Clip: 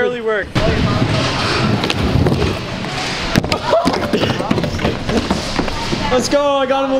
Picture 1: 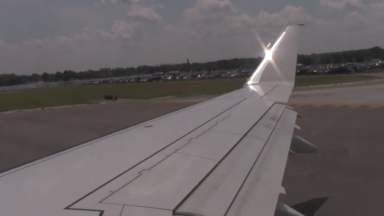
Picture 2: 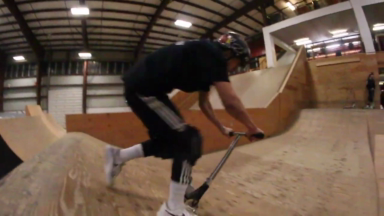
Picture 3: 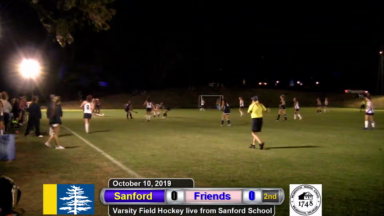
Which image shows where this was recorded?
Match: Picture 2